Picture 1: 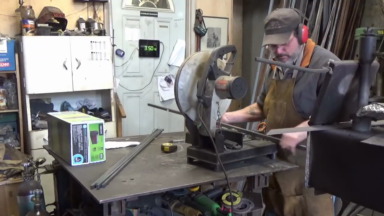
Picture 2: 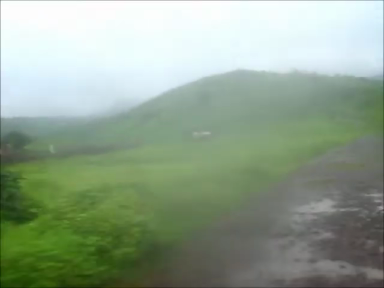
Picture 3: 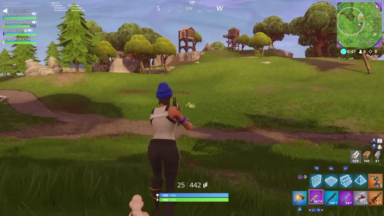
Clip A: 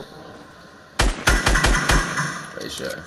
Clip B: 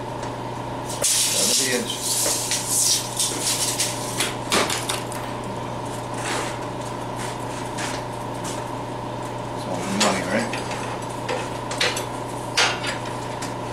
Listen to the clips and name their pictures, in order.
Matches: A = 3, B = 1